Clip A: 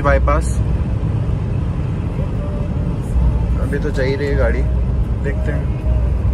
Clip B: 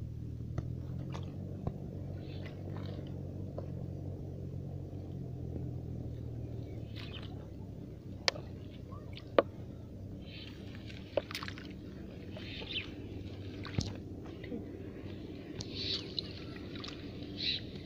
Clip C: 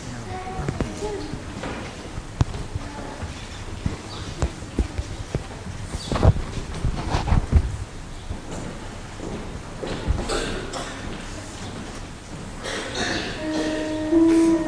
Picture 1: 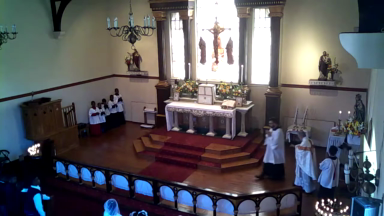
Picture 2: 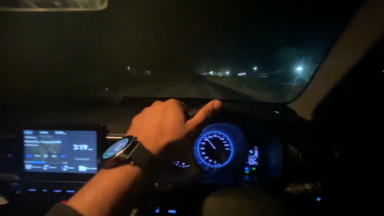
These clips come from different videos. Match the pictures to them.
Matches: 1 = C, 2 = A